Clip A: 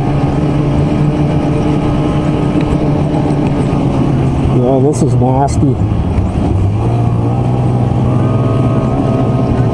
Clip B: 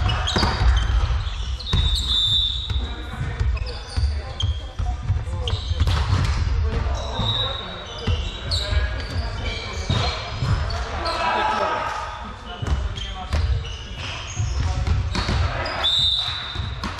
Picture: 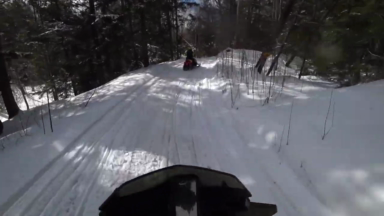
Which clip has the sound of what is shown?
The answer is A